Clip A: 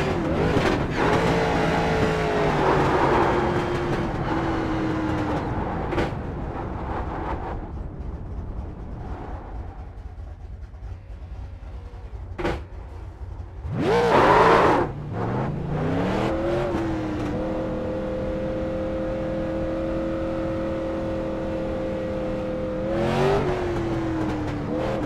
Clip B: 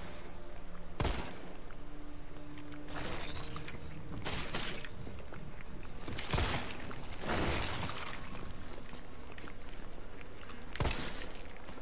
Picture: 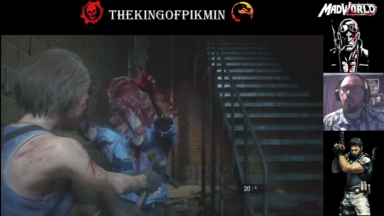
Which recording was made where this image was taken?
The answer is B